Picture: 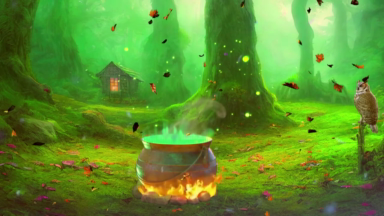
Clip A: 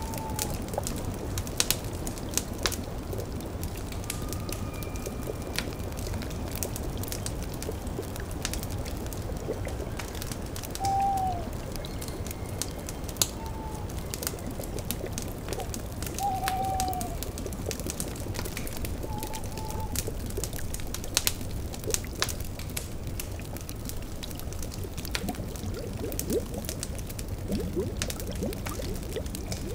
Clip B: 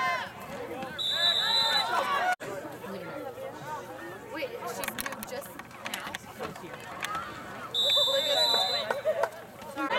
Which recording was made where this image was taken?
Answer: A